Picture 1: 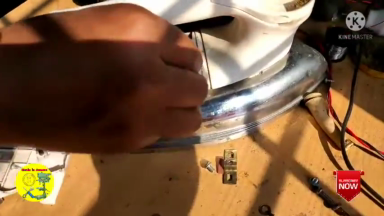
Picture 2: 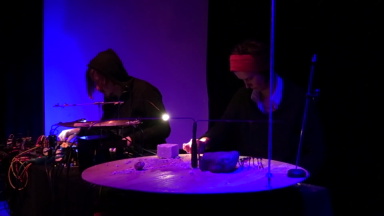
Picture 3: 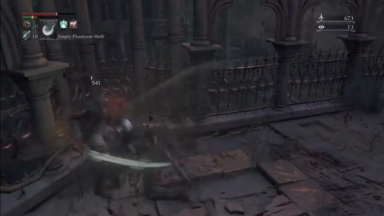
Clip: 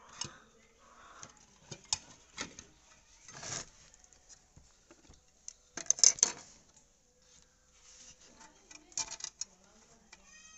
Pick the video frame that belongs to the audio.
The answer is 1